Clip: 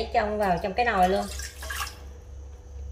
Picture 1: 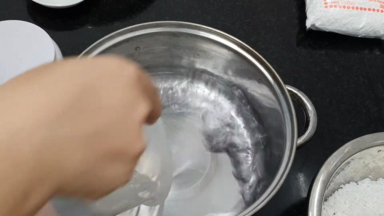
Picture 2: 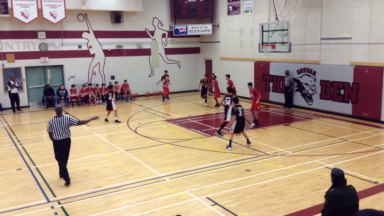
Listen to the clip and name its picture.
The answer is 1